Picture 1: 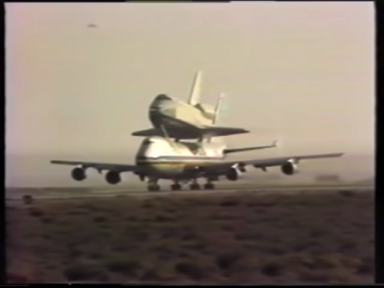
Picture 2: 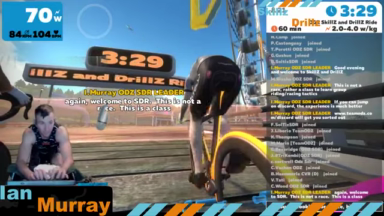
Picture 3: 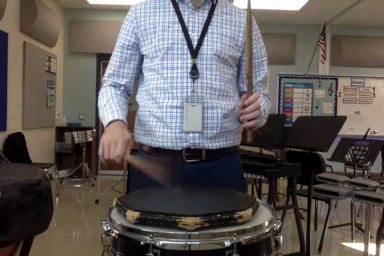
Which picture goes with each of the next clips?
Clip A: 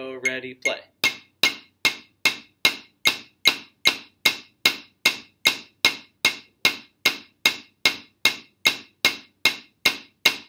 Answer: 3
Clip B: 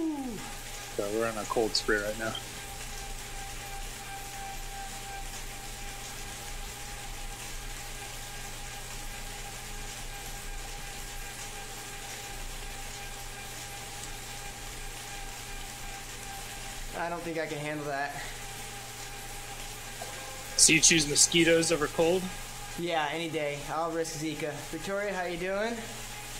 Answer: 2